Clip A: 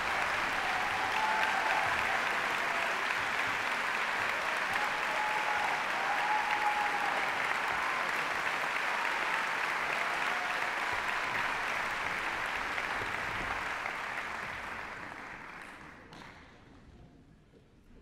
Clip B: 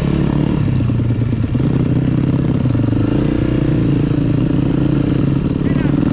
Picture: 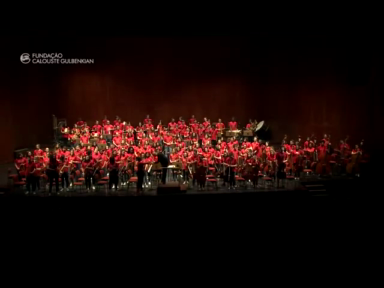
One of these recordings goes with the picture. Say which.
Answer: A